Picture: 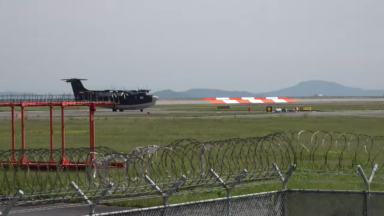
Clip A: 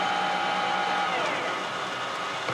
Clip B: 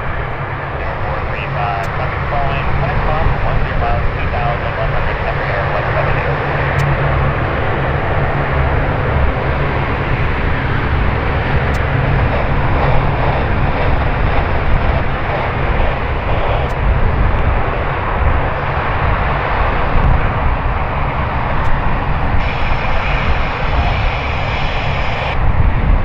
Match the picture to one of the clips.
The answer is B